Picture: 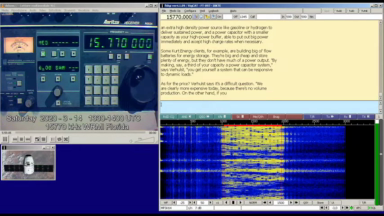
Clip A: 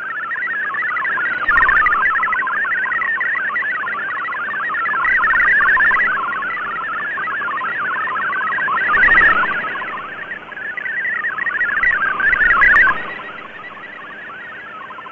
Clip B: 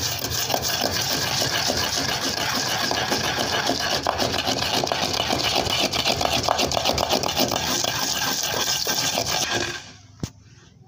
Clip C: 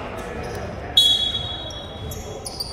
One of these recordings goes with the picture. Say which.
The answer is A